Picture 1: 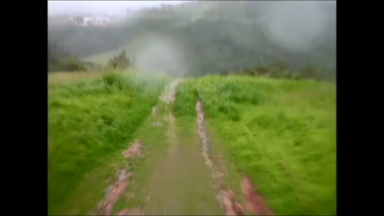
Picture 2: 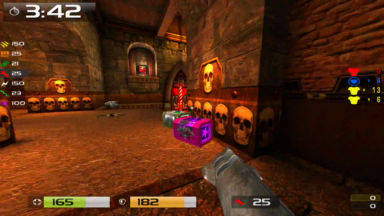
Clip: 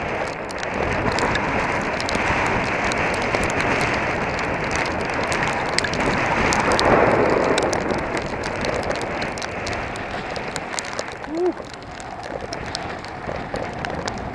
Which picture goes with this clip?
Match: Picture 1